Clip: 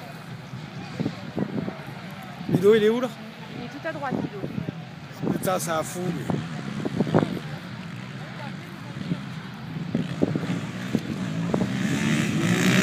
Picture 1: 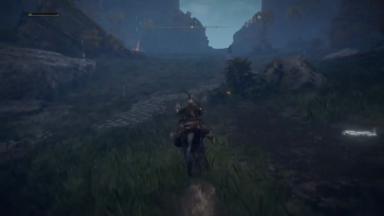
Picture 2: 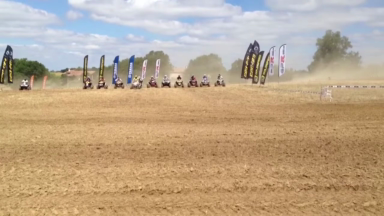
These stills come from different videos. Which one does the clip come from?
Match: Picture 2